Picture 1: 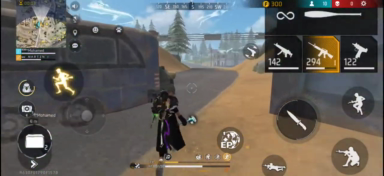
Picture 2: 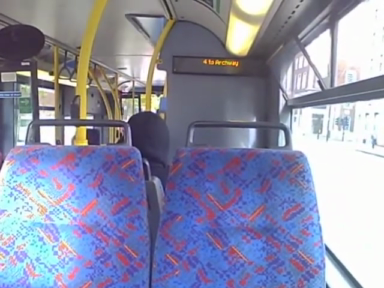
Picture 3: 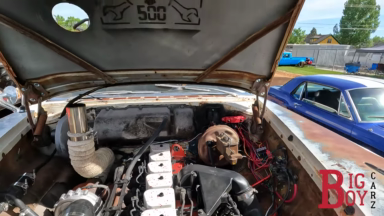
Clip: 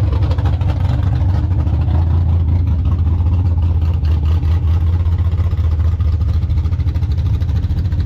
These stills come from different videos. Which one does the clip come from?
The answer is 3